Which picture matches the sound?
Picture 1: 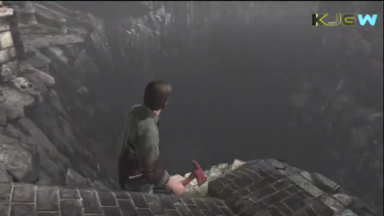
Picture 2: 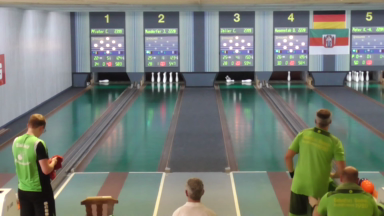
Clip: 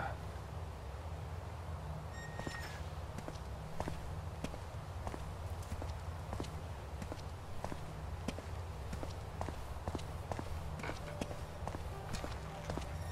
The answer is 1